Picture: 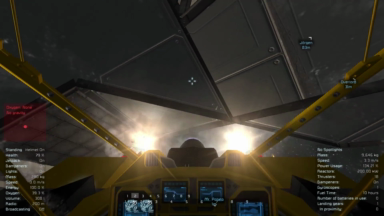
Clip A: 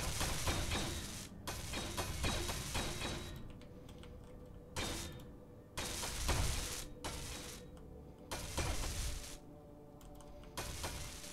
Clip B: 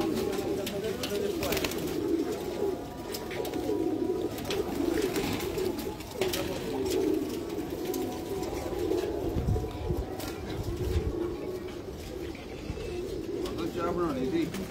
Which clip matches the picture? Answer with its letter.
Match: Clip A